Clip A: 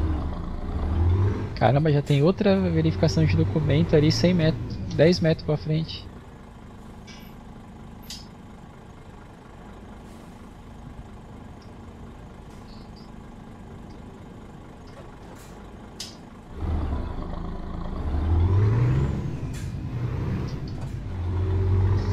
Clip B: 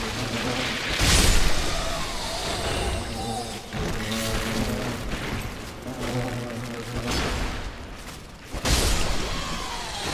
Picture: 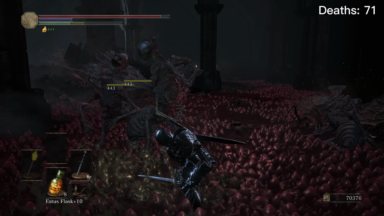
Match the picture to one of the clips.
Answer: B